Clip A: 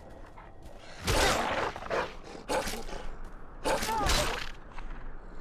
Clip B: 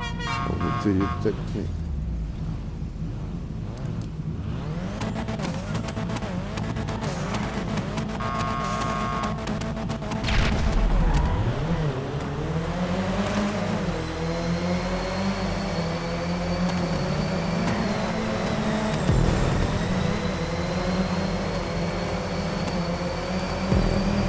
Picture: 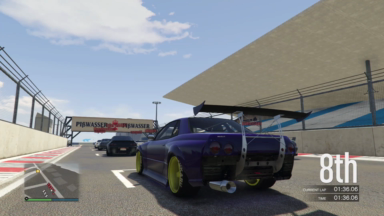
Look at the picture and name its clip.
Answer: B